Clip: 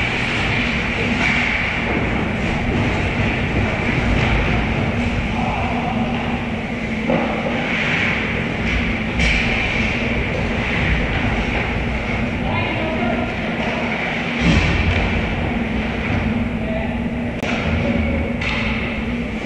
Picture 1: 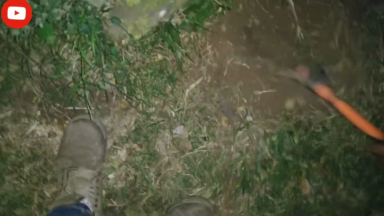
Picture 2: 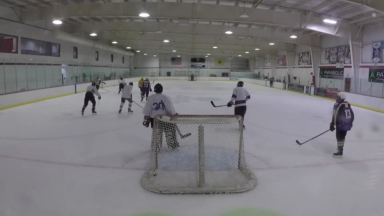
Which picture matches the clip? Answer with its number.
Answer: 2